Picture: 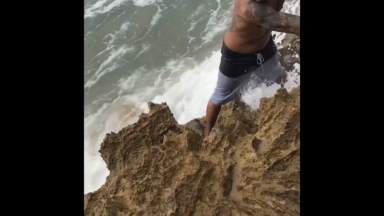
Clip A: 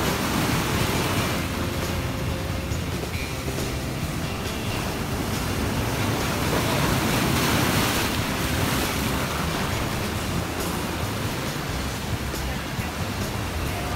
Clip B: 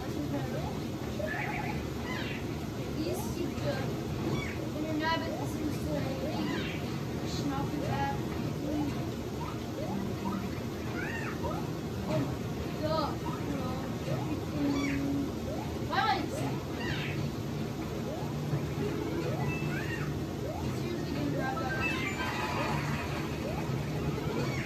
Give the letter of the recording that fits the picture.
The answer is A